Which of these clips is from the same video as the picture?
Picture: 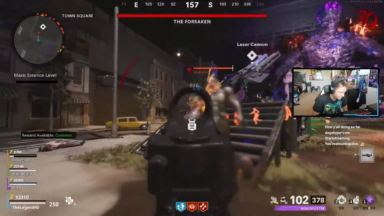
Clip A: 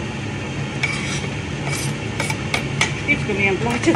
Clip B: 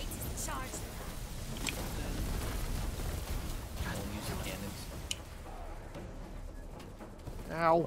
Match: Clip B